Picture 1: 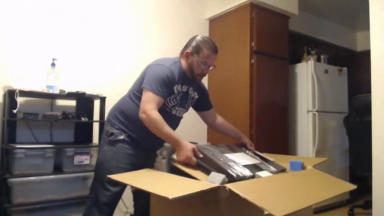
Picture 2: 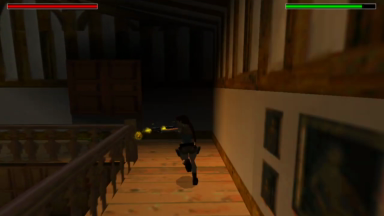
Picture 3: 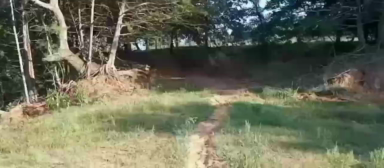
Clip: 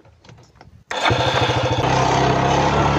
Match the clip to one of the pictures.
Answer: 3